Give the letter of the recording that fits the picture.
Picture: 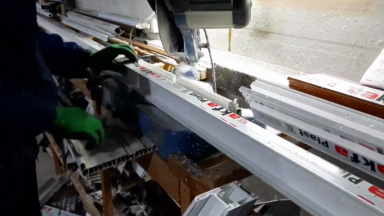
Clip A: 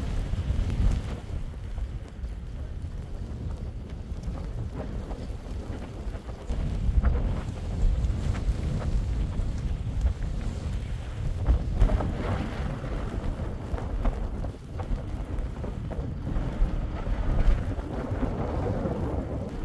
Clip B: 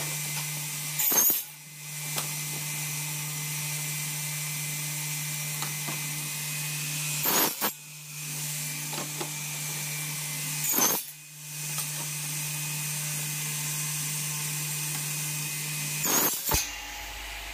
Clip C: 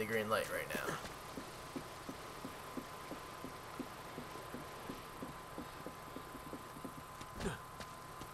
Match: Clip B